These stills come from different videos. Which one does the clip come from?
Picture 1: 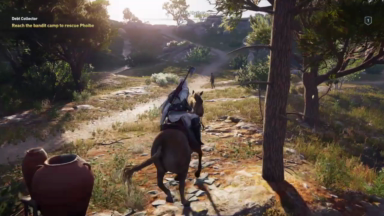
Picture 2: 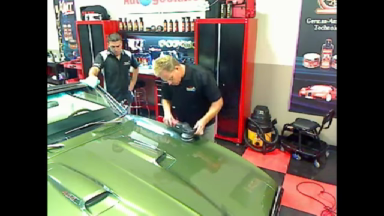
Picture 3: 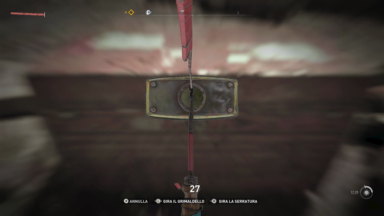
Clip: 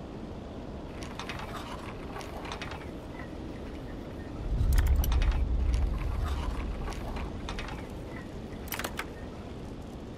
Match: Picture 3